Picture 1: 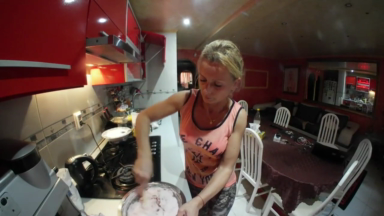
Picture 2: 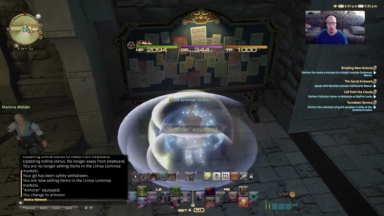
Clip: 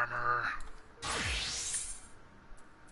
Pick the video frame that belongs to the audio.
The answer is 2